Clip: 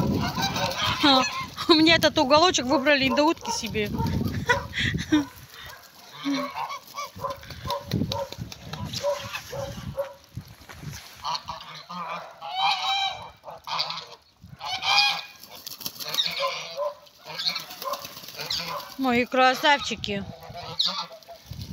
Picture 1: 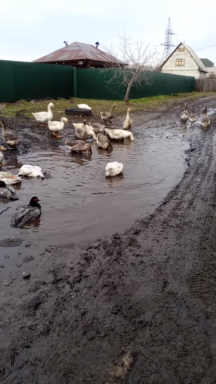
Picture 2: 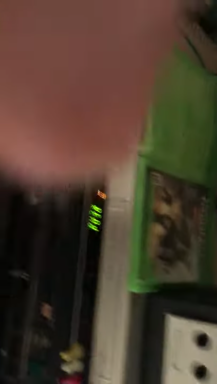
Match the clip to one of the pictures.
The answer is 1